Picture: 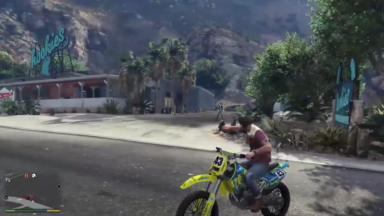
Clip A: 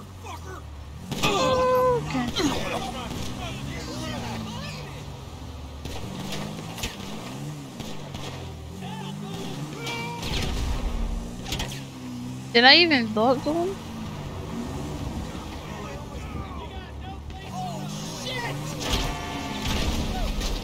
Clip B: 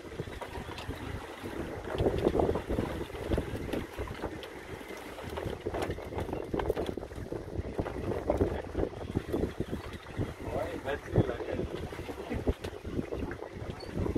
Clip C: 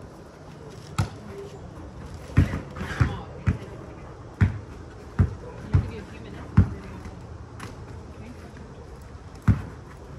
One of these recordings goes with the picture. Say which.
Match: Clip A